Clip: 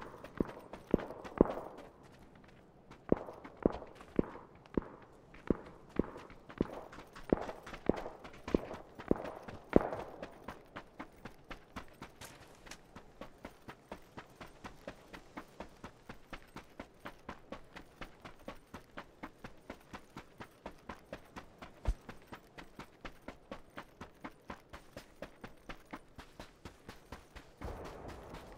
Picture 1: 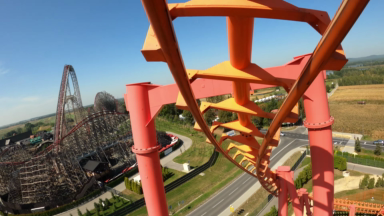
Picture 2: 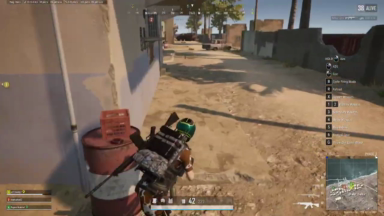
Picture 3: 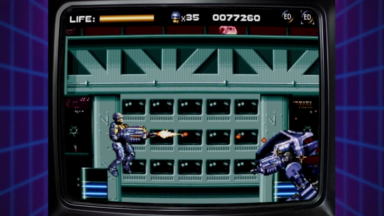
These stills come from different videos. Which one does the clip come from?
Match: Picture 2